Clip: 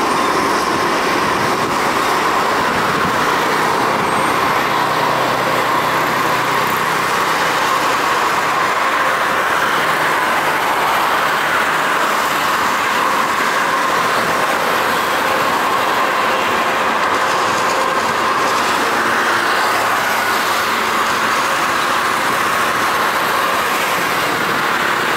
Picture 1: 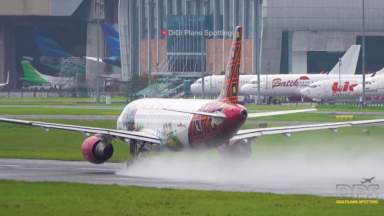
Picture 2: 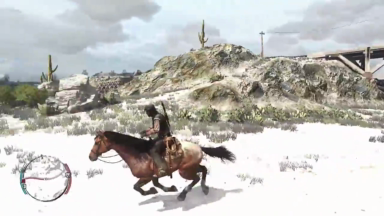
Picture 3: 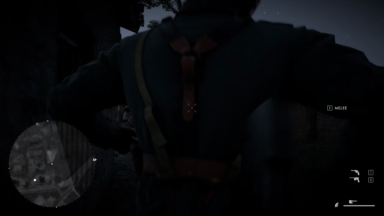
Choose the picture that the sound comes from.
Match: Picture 1